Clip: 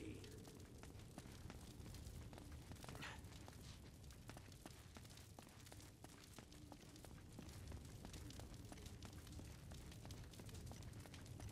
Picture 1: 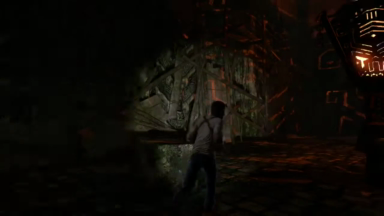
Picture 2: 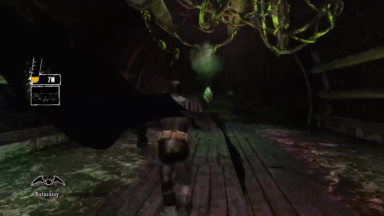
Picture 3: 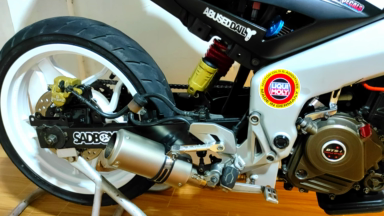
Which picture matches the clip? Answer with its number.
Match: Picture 1